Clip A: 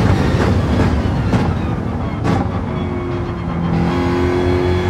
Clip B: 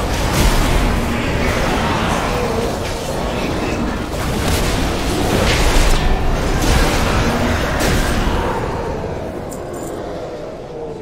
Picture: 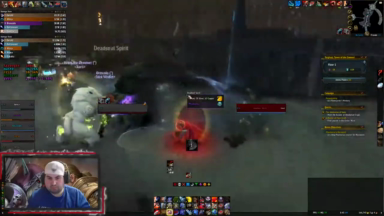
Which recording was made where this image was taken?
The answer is B